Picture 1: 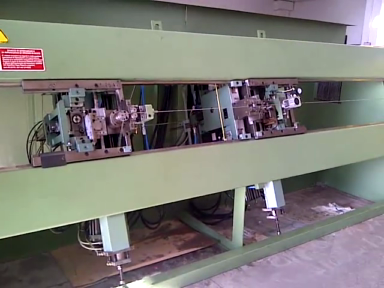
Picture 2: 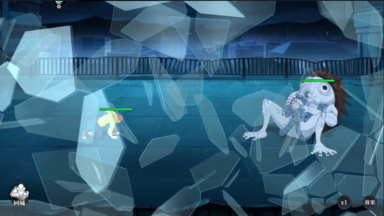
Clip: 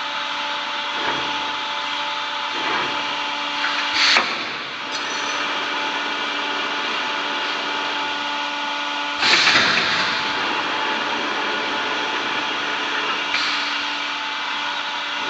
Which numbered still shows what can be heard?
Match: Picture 1